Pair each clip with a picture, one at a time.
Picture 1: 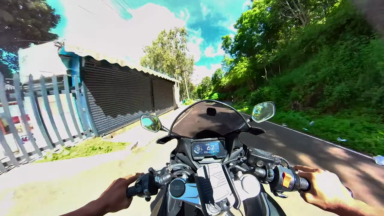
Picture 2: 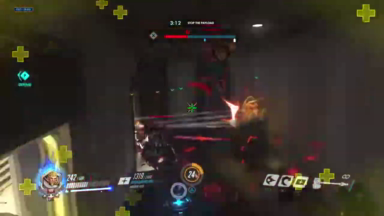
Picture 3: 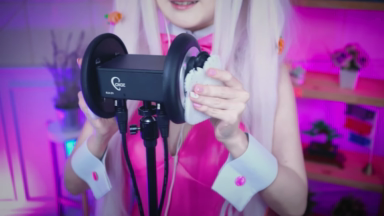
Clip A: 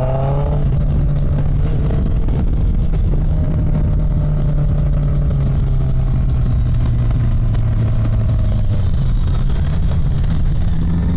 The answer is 1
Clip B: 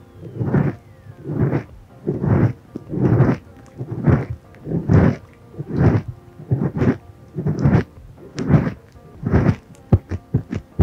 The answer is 3